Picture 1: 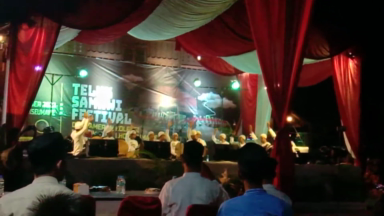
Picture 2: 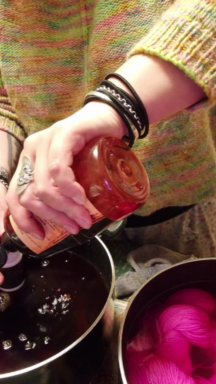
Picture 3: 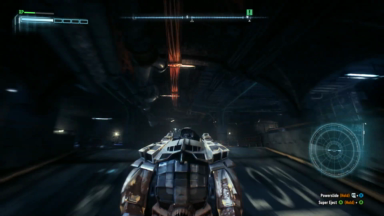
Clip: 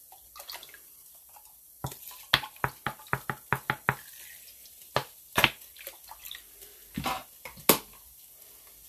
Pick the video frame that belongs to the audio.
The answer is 2